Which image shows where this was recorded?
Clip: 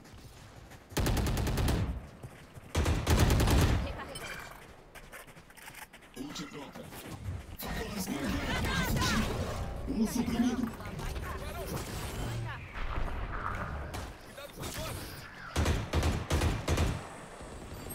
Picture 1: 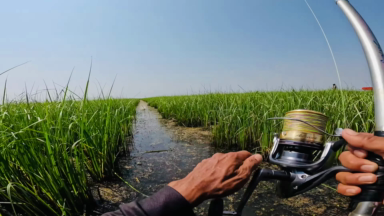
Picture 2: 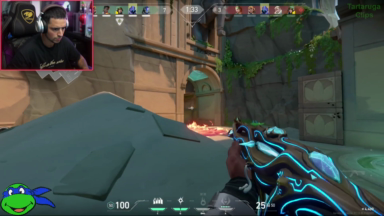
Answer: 2